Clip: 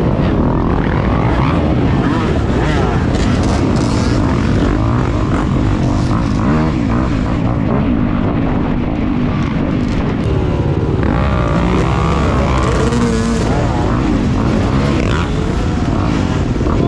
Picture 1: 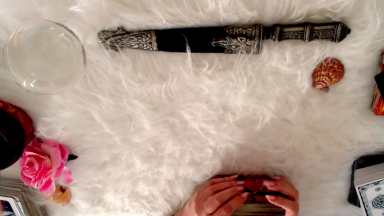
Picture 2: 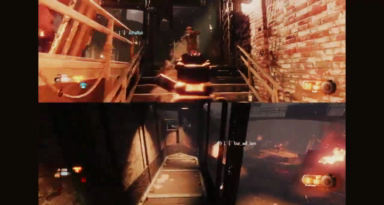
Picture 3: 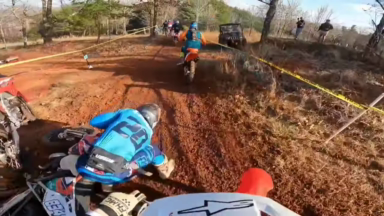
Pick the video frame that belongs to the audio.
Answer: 3